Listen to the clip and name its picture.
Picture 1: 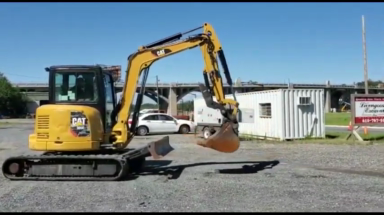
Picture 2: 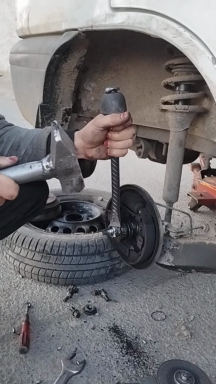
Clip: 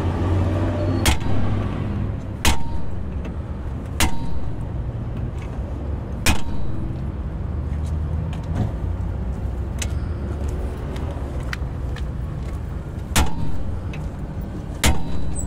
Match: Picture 2